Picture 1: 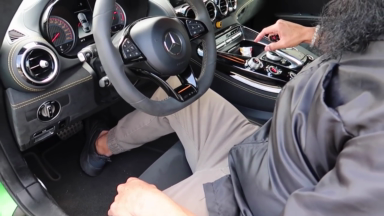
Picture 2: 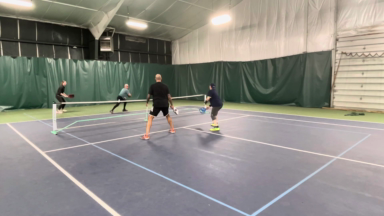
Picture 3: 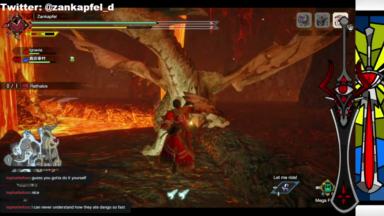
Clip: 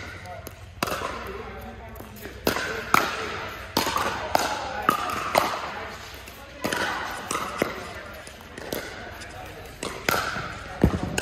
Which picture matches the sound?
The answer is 2